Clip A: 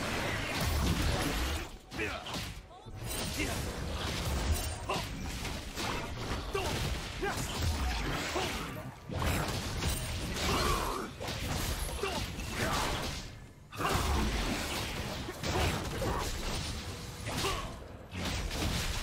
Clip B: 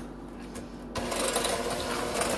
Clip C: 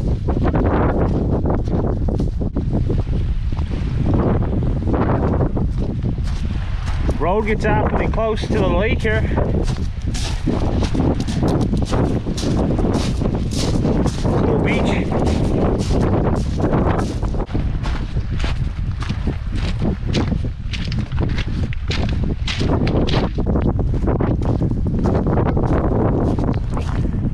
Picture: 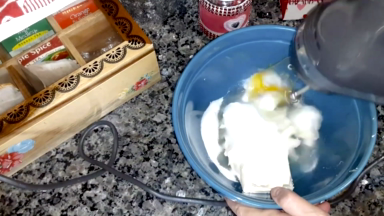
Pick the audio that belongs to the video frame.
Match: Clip B